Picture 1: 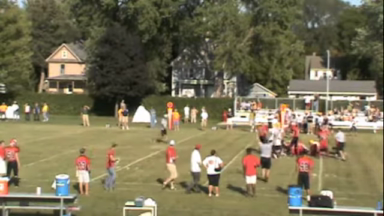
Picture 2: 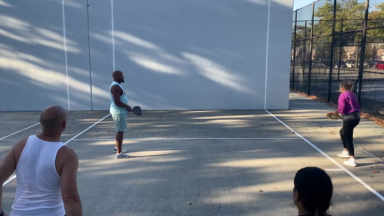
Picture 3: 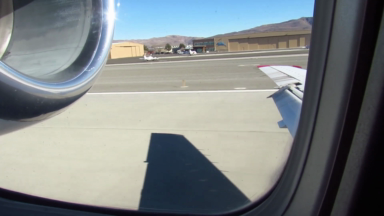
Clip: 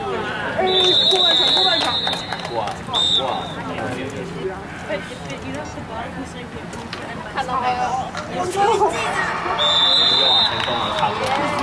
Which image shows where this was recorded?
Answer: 1